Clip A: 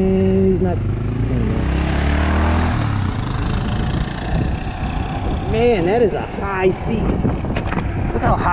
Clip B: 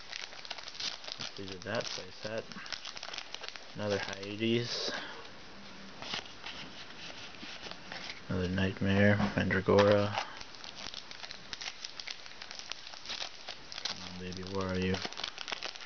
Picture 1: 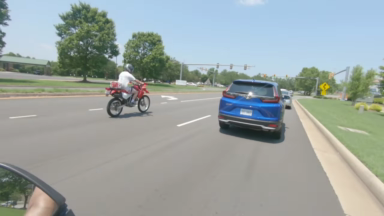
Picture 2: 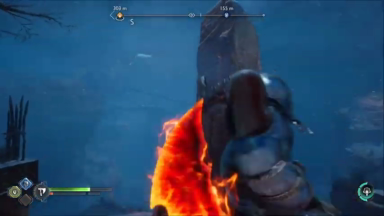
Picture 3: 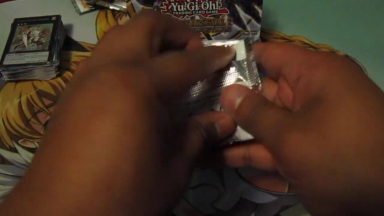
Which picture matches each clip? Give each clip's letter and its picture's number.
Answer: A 1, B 3